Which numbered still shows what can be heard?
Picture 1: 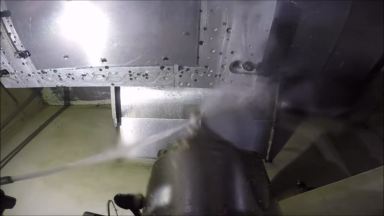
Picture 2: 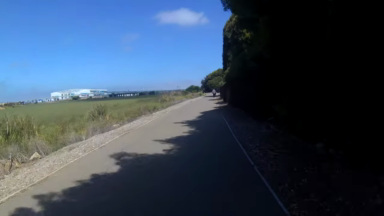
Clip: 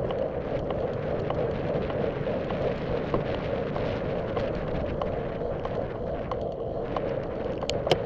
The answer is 2